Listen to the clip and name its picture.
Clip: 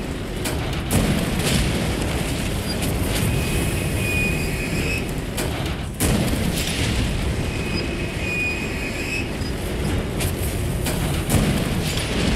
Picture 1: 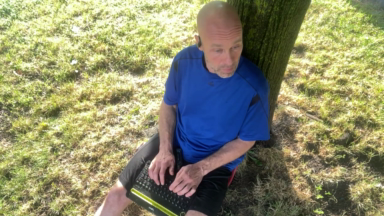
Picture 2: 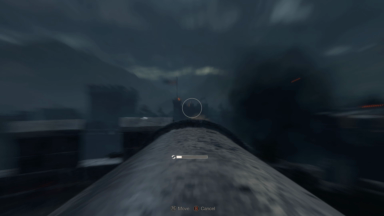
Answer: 2